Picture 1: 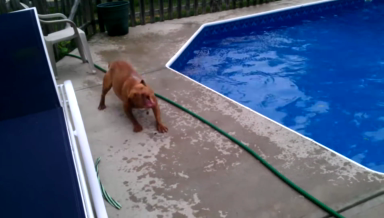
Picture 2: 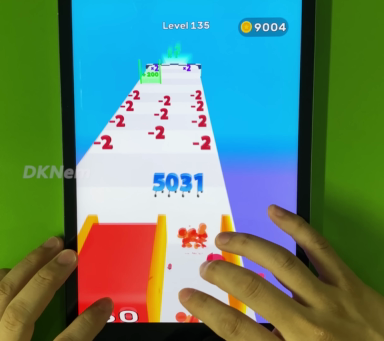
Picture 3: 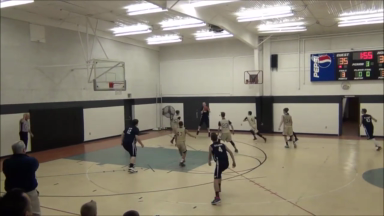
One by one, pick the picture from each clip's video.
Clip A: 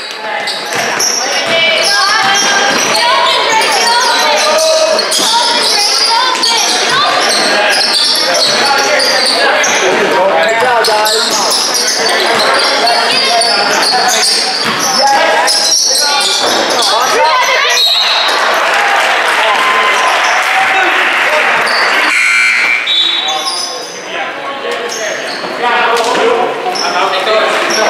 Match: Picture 3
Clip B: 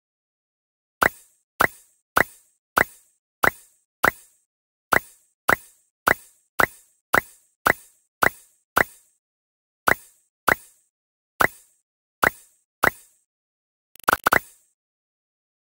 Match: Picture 2